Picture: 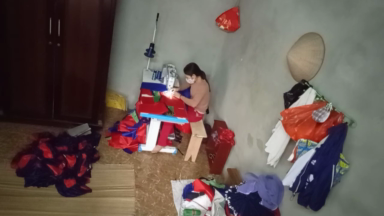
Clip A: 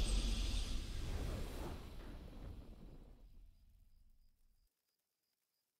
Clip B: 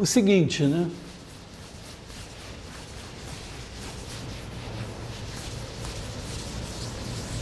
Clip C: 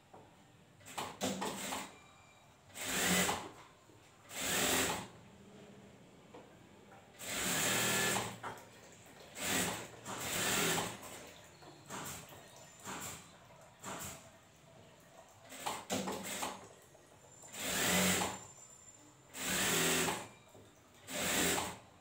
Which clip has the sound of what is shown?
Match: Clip C